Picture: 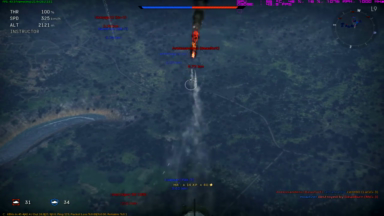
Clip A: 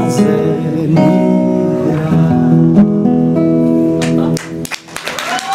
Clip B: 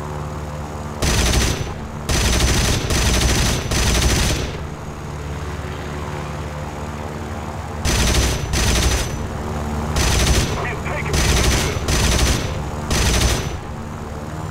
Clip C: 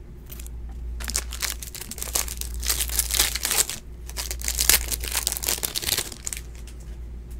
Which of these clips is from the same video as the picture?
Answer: B